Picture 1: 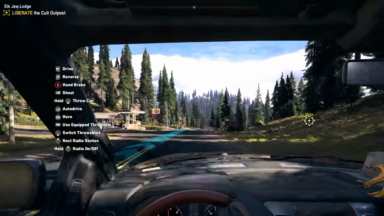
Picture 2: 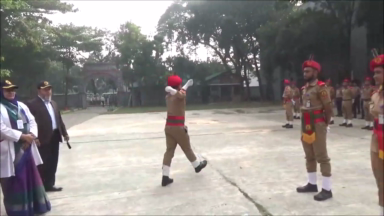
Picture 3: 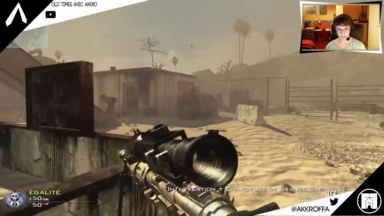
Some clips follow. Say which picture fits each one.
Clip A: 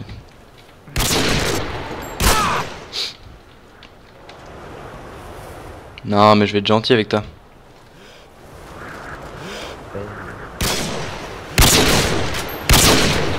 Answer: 3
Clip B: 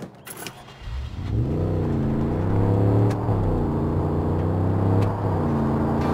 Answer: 1